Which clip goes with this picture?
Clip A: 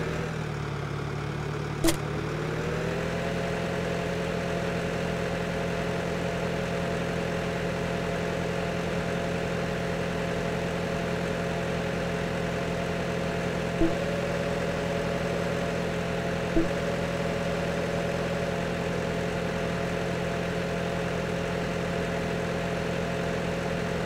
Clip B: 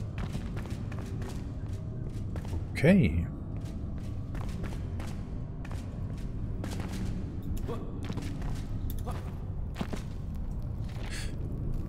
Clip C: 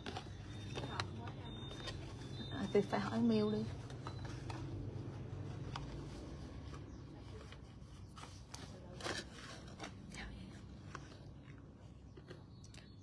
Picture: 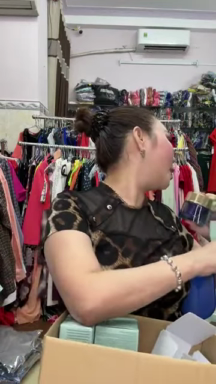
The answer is C